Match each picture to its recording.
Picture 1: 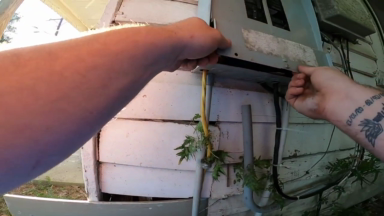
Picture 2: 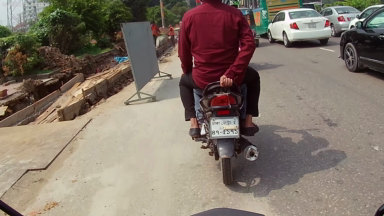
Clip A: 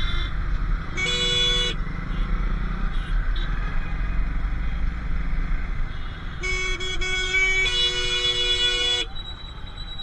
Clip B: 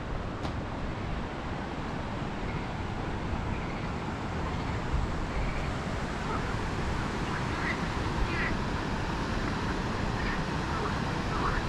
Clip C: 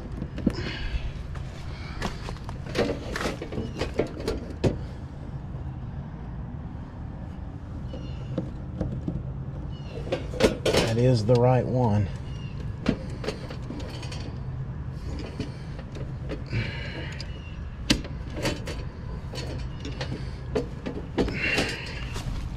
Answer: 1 C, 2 A